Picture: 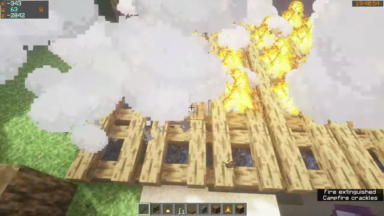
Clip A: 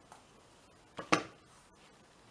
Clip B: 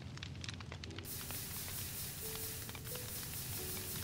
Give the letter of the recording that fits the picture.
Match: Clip B